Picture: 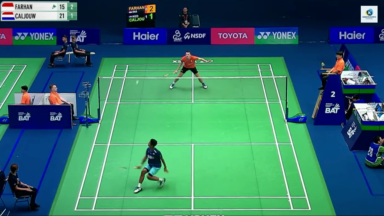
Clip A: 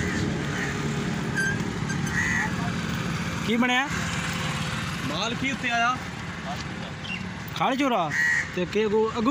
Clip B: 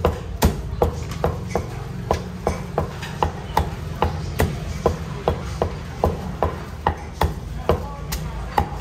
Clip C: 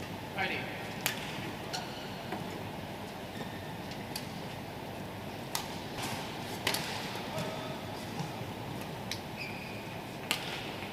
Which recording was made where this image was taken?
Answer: C